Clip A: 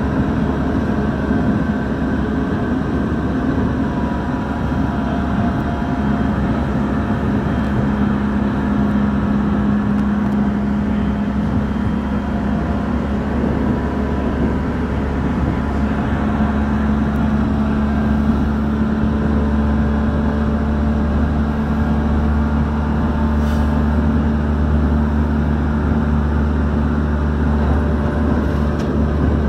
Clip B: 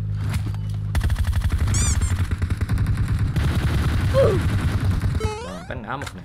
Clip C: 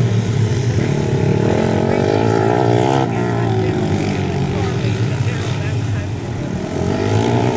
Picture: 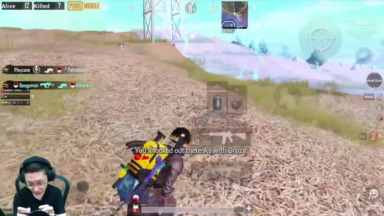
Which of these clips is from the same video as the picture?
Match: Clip B